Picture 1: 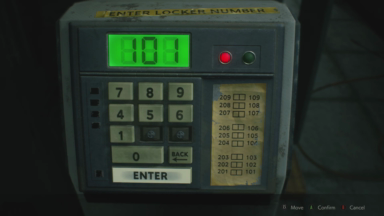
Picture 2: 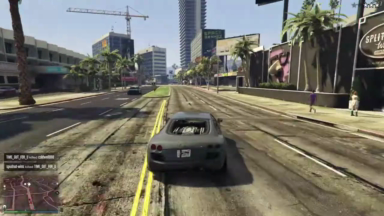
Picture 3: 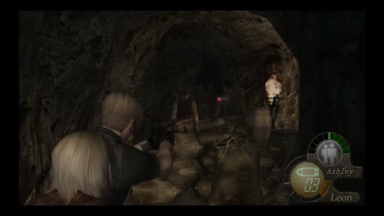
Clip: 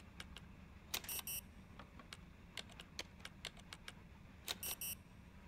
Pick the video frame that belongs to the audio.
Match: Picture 1